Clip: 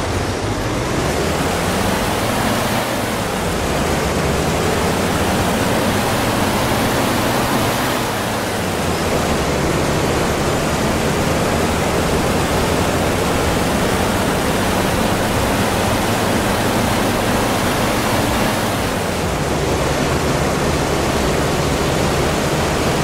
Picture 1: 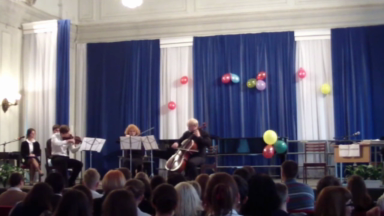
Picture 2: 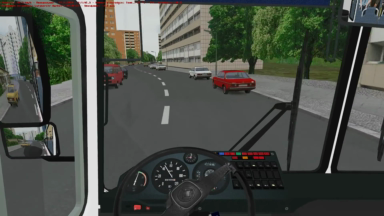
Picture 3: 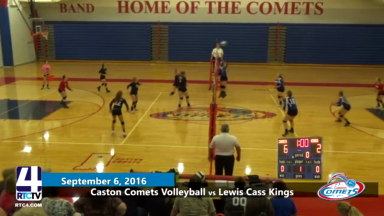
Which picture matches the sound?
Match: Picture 2